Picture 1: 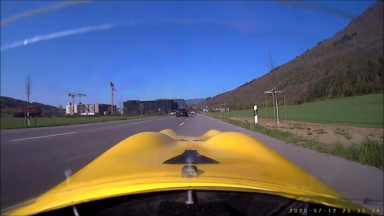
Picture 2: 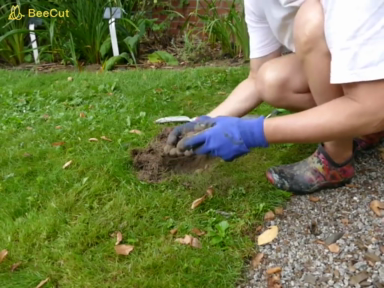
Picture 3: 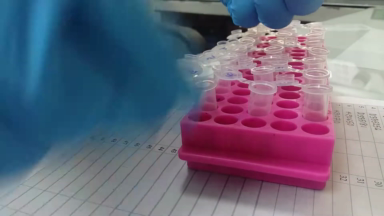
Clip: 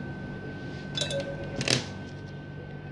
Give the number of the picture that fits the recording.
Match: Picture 3